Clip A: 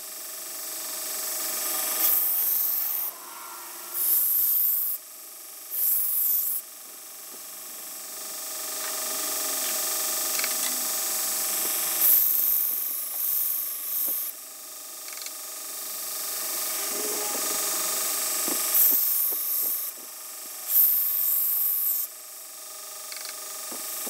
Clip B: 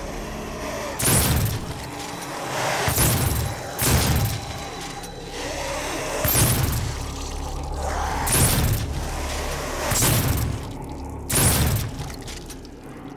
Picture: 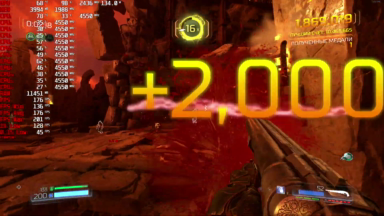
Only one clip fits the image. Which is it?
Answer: B